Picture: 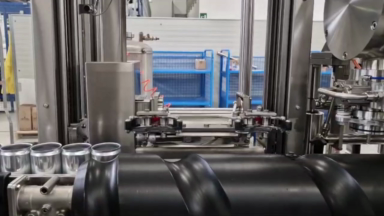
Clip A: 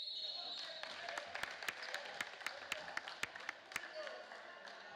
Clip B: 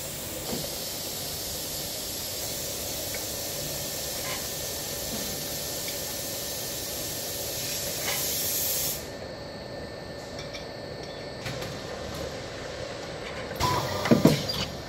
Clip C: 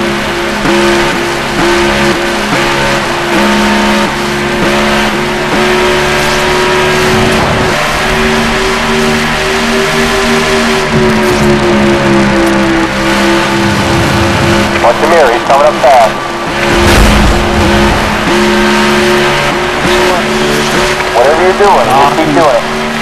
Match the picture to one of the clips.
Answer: B